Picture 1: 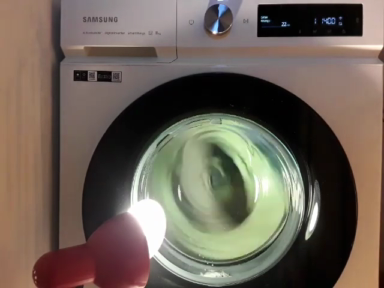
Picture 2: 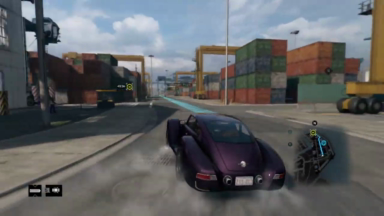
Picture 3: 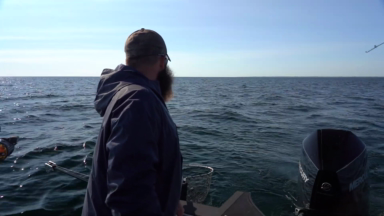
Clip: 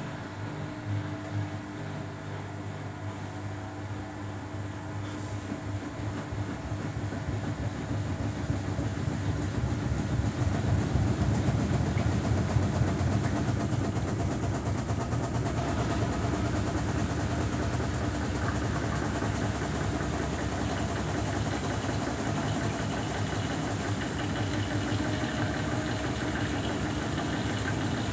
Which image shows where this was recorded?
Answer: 1